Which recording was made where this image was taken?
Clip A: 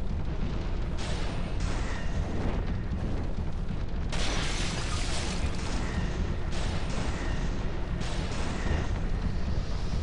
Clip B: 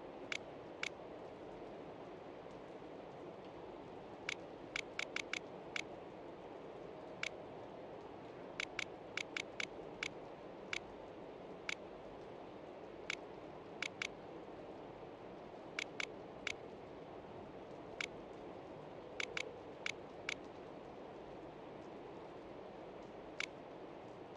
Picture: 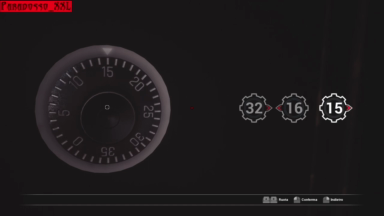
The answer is B